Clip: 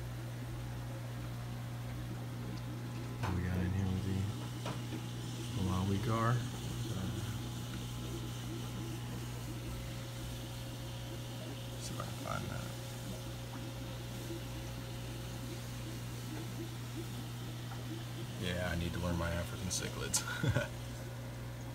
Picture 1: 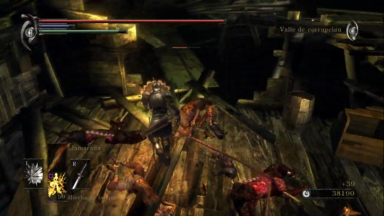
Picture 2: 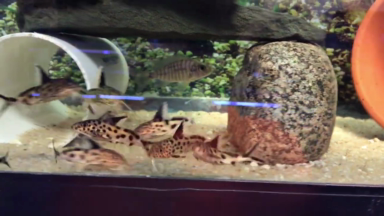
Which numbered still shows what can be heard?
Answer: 2